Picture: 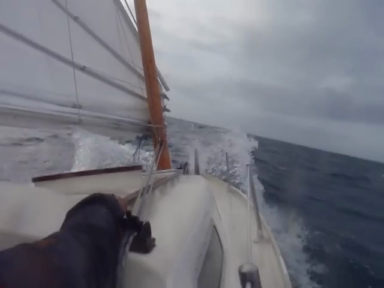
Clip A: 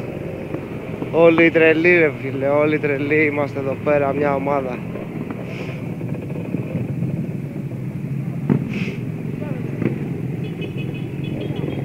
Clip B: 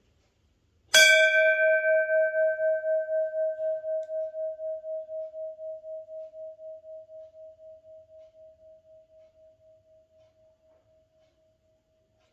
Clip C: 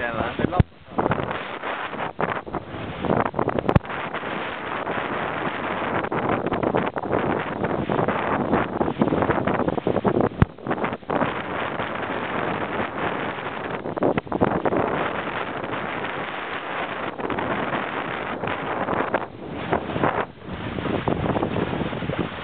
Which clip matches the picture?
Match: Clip C